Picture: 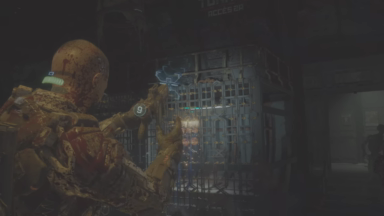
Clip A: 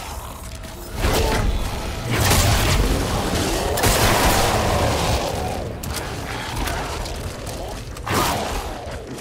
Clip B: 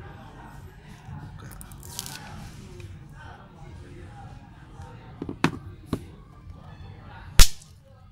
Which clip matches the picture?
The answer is A